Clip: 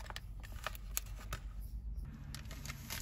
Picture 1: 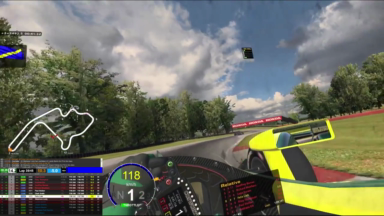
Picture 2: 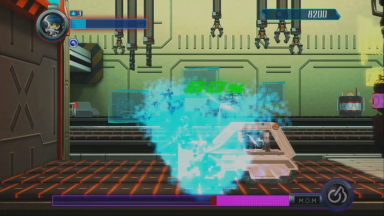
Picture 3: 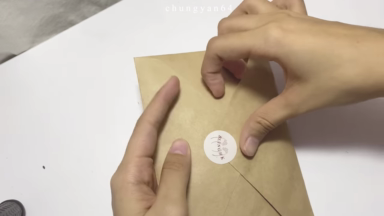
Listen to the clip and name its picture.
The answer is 3